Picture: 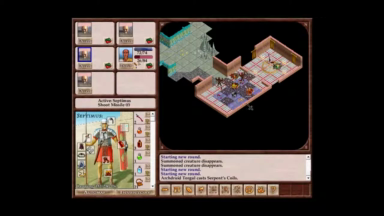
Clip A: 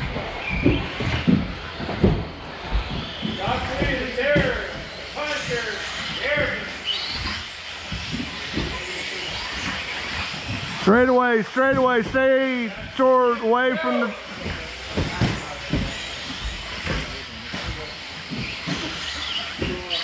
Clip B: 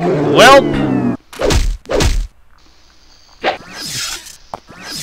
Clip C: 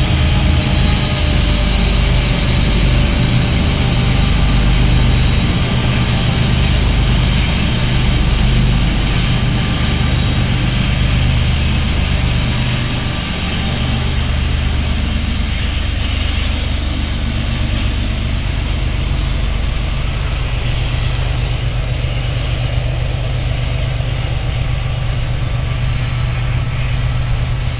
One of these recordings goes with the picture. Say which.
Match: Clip B